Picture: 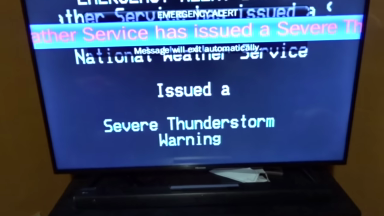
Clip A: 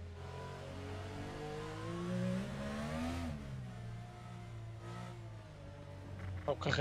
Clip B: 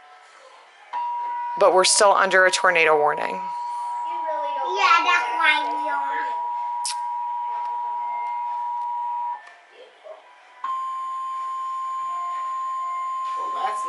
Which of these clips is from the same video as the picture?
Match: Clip B